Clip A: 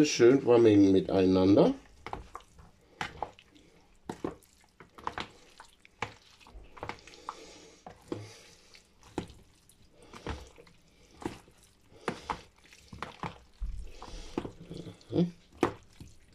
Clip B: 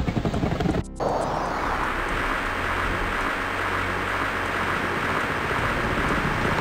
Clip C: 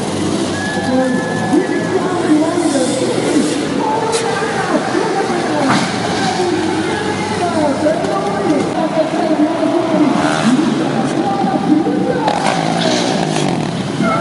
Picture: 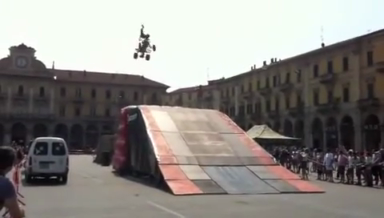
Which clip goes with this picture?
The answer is C